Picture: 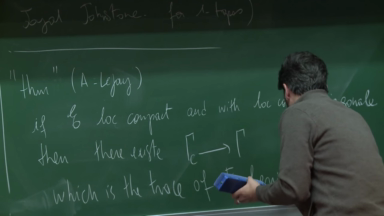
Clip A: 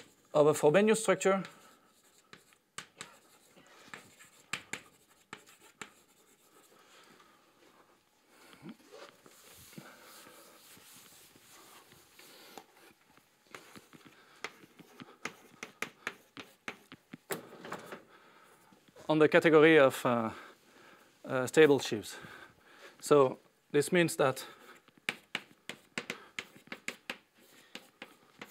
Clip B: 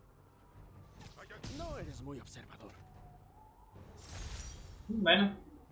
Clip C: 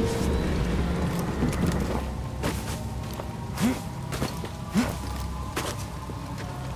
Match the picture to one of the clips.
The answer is A